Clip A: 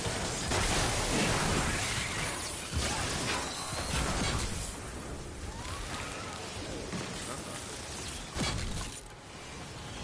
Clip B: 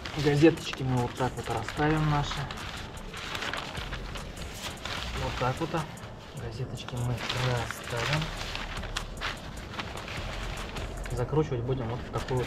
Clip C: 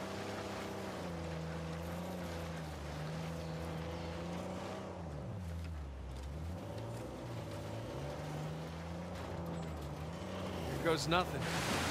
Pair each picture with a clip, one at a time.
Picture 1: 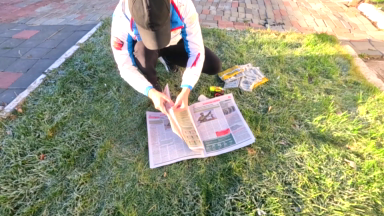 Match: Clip B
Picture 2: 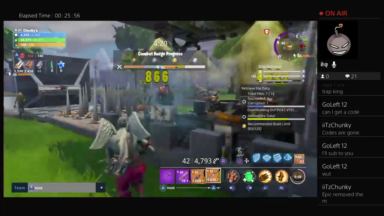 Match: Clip A